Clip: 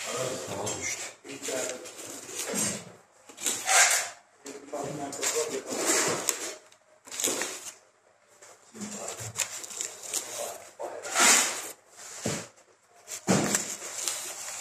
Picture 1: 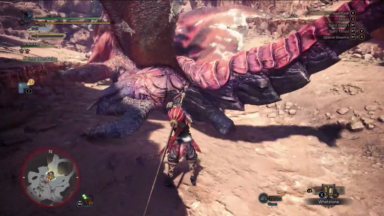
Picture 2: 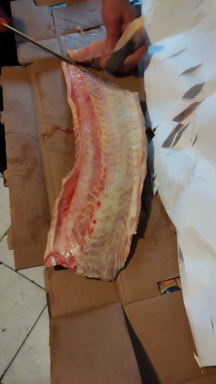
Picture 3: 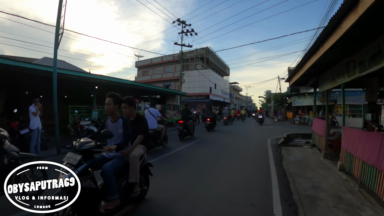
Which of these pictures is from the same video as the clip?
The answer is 2